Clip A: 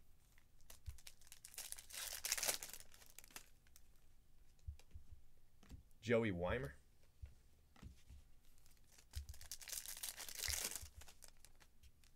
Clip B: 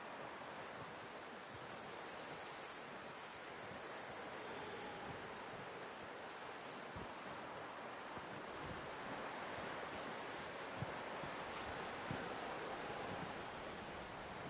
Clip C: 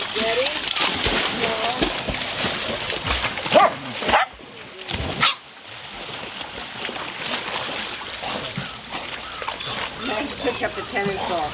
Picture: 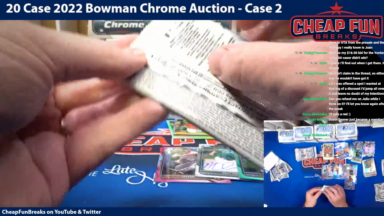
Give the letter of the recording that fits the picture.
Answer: A